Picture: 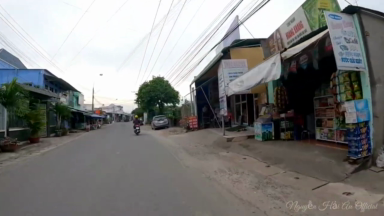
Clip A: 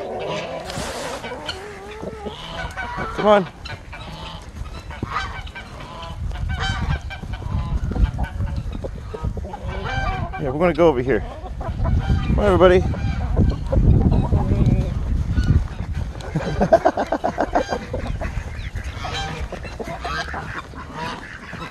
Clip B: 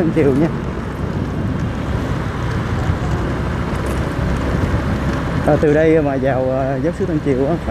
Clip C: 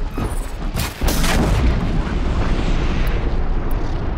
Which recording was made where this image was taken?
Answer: B